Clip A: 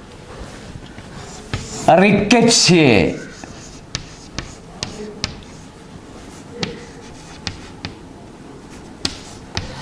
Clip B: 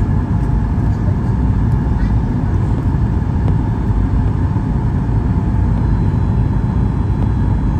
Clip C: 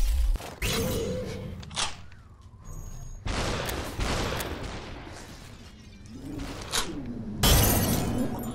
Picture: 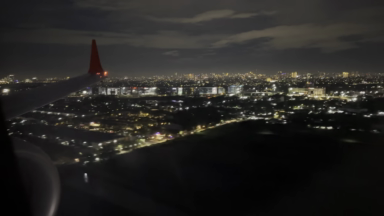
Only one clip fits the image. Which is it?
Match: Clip B